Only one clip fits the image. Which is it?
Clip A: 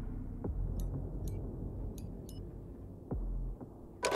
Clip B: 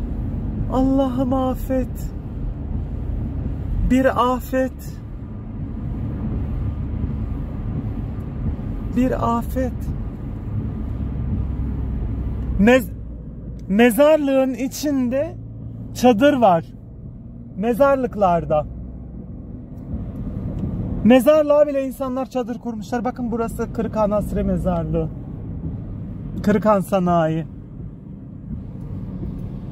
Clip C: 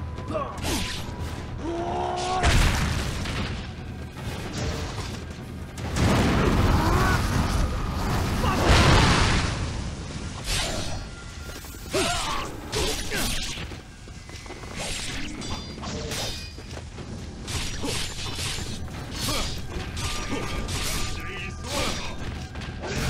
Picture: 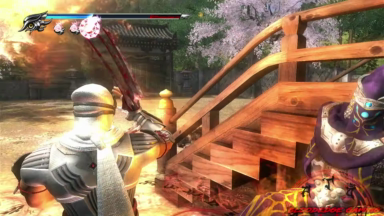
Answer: C